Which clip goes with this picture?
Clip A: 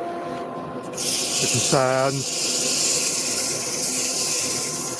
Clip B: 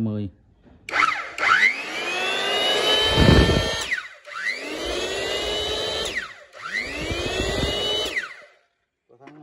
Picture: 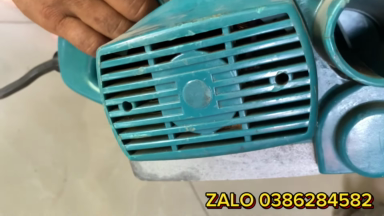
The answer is B